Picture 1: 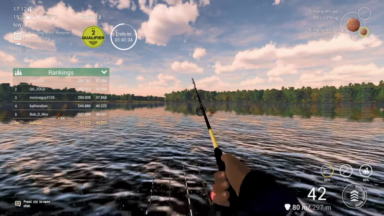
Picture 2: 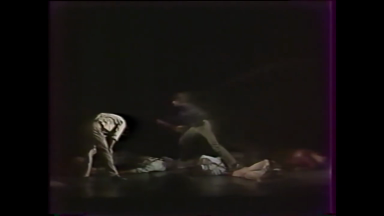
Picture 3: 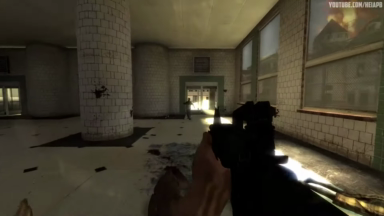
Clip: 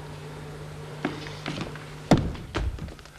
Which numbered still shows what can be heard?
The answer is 2